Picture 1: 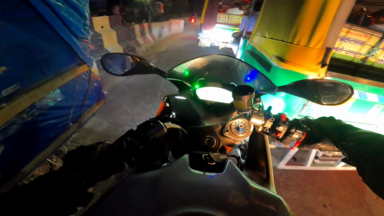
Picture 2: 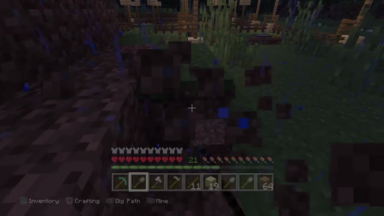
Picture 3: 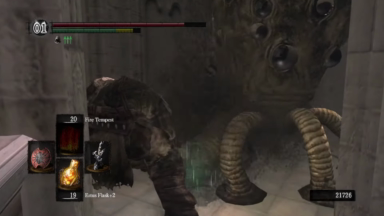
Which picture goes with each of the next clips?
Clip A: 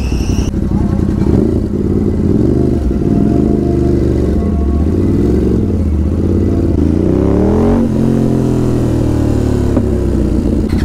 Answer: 1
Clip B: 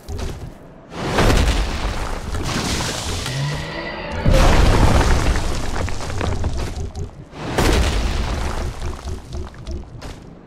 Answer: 3